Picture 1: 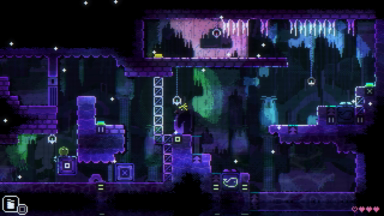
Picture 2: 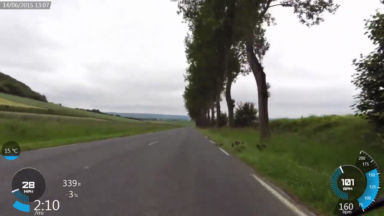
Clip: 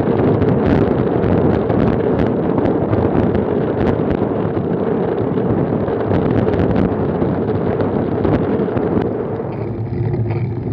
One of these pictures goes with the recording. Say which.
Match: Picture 2